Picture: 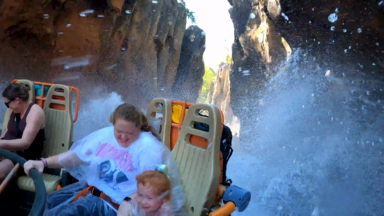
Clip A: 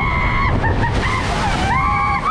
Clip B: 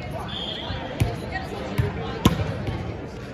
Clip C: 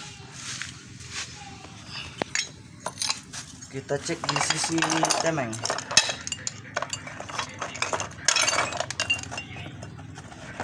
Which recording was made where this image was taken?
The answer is A